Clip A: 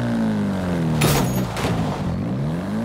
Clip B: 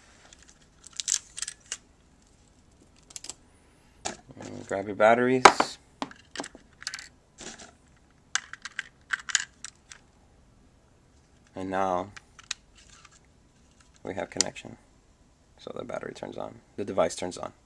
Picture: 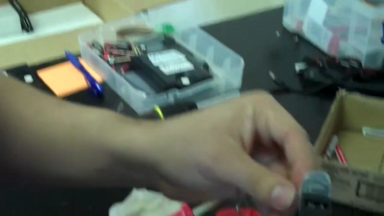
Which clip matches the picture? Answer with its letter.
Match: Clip B